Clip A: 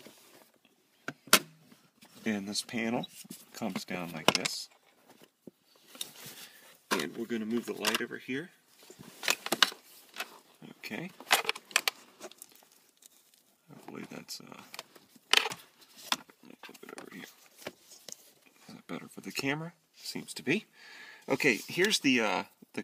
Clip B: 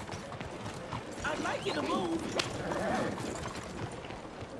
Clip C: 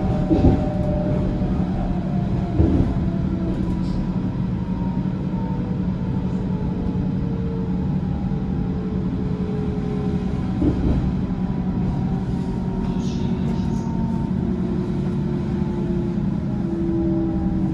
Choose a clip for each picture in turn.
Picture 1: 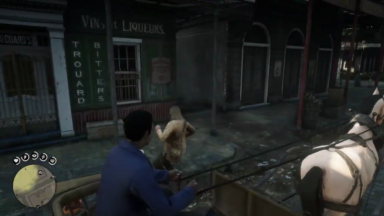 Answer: B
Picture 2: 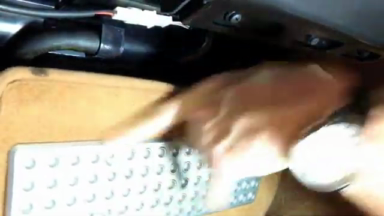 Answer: A